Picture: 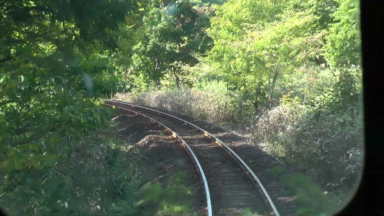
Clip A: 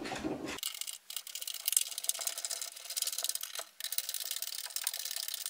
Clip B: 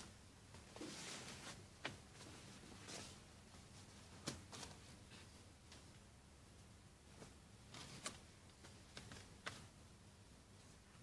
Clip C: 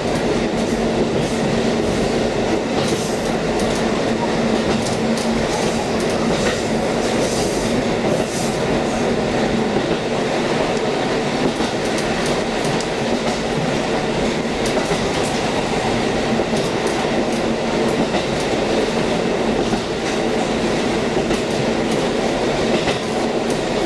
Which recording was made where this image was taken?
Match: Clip C